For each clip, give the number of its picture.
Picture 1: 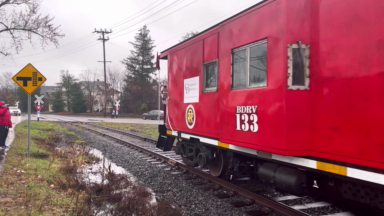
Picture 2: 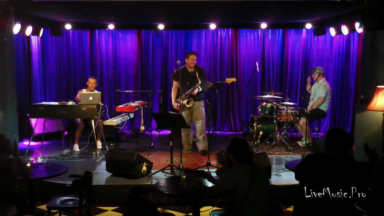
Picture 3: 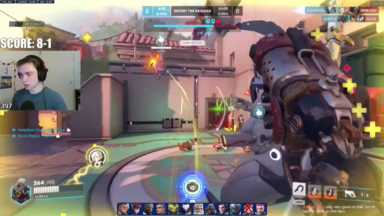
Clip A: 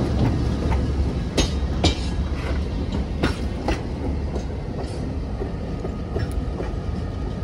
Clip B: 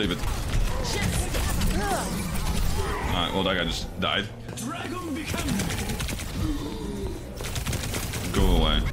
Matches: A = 1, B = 3